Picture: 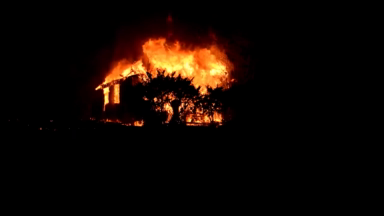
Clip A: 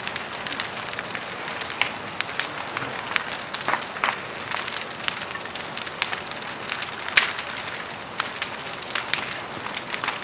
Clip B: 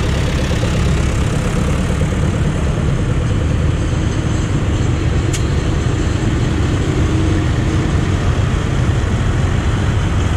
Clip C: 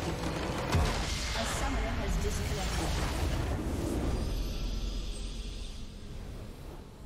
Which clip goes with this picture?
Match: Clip A